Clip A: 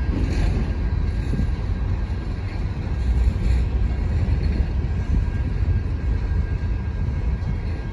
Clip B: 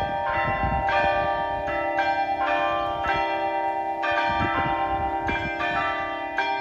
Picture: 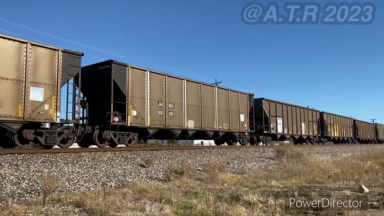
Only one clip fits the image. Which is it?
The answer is A